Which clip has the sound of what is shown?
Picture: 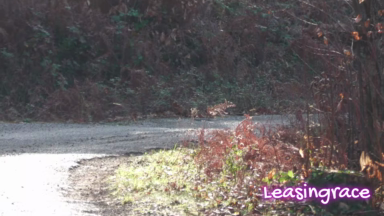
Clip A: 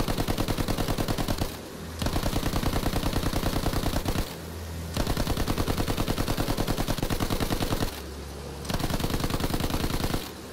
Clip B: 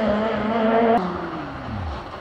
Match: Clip B